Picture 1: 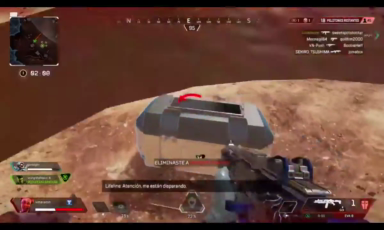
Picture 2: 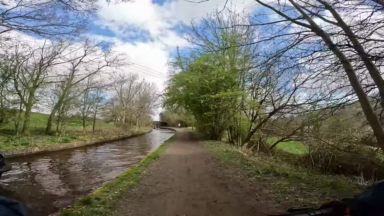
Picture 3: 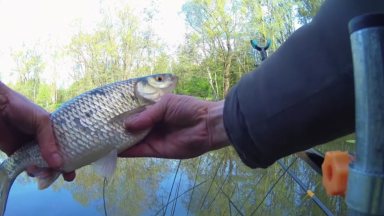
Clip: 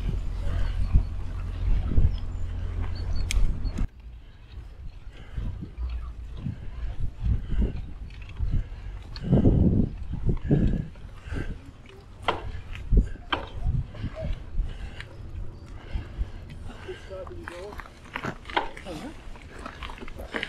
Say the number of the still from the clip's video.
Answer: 2